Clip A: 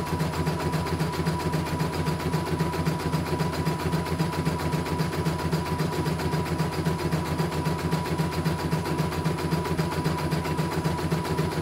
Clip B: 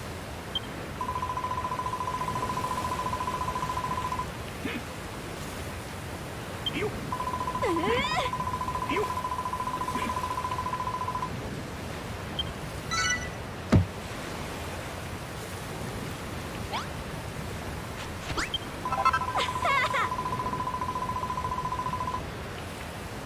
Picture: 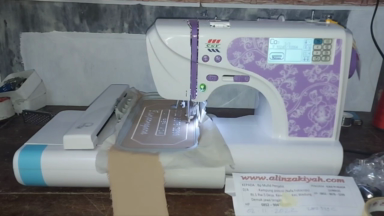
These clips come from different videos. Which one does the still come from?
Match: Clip A